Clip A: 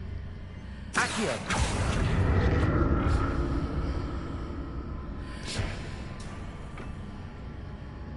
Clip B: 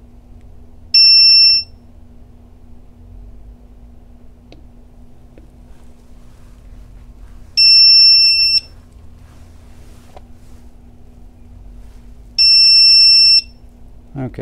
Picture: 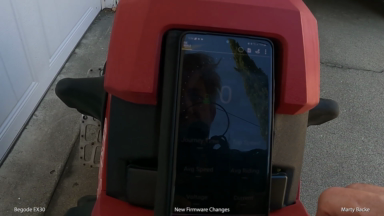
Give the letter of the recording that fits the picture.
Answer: B